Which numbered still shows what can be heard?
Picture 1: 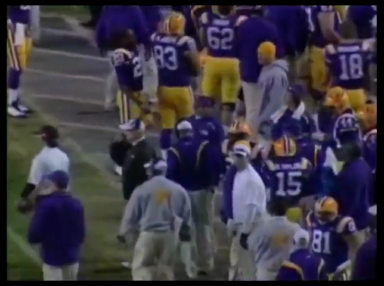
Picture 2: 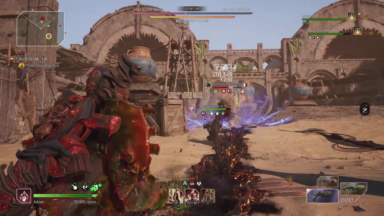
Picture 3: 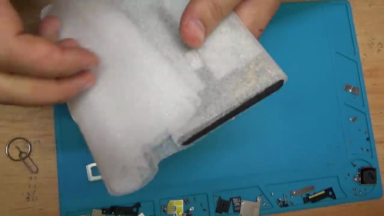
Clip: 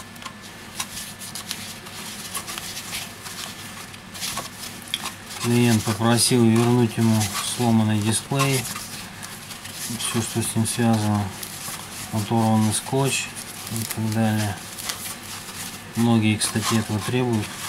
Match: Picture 3